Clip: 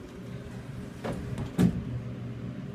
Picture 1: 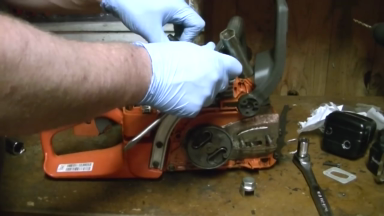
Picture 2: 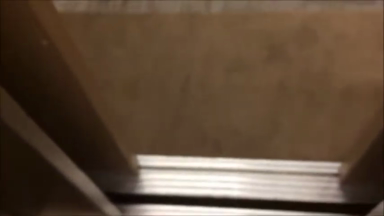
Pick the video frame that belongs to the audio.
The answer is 2